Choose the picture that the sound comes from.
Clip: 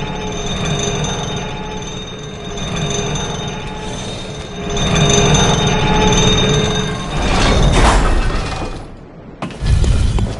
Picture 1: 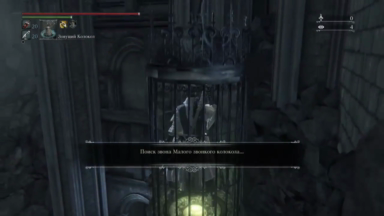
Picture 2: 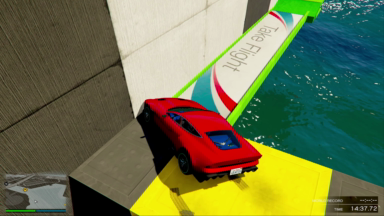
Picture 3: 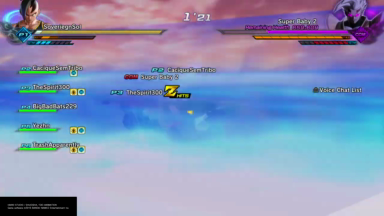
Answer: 1